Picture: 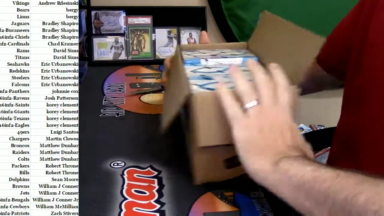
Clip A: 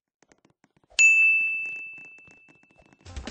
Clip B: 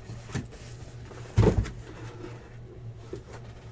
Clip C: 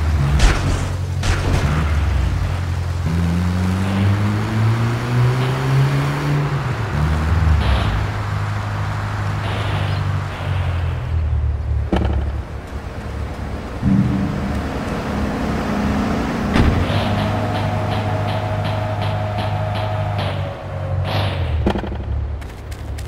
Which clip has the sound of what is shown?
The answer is B